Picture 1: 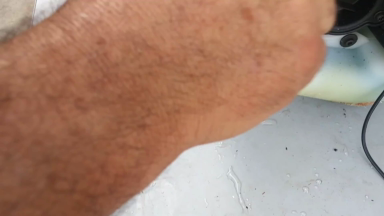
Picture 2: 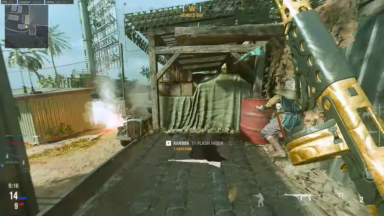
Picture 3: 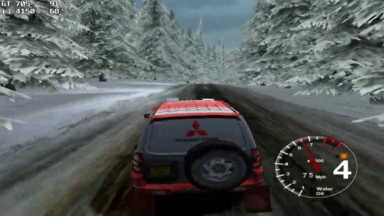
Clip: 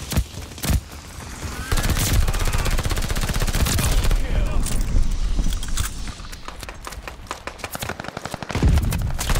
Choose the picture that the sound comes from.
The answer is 2